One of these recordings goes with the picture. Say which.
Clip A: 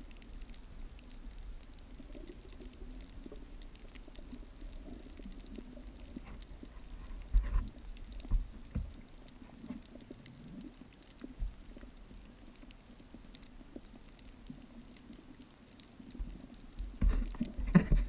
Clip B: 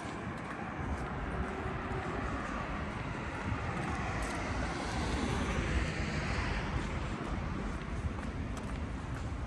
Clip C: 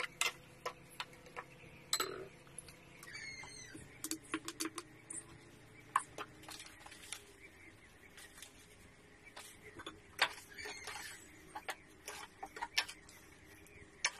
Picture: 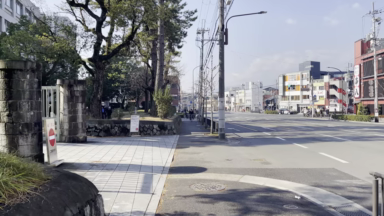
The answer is B